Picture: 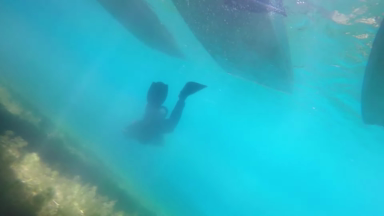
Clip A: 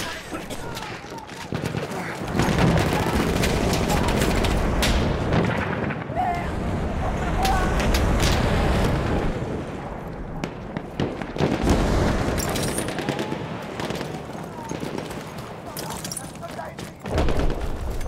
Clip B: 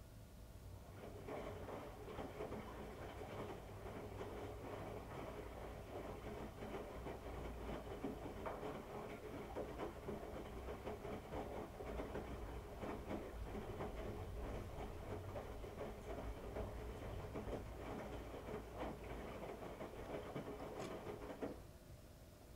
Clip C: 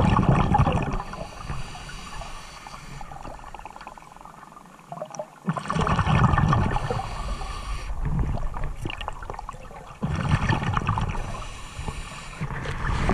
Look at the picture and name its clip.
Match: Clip C